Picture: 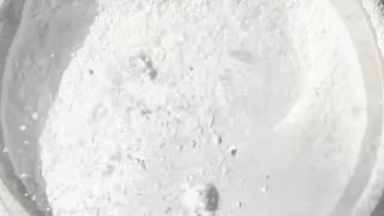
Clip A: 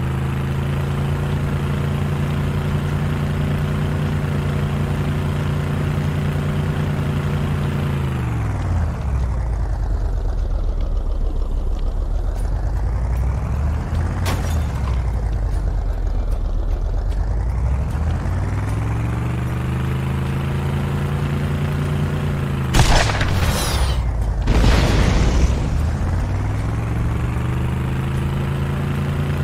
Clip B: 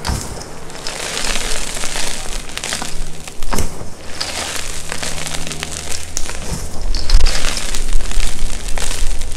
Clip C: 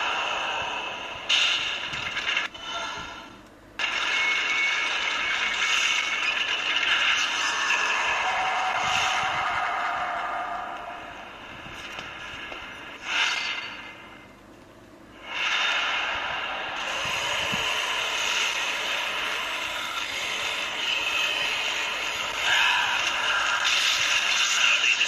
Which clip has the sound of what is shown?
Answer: B